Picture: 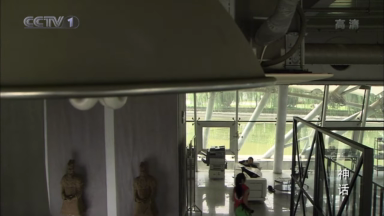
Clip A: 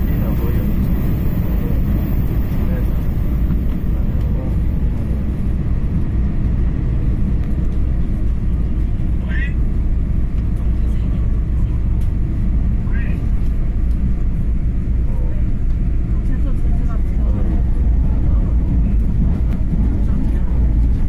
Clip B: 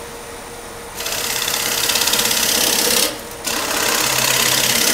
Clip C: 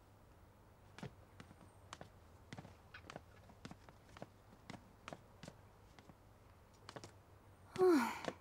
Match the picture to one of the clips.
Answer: C